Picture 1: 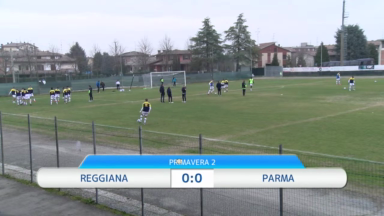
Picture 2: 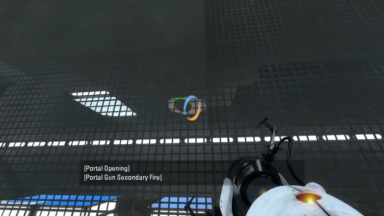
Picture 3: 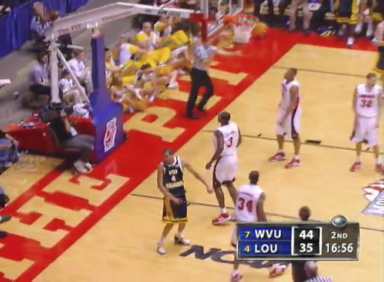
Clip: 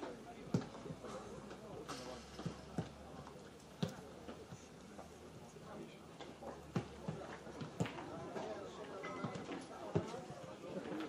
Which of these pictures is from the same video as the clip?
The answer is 1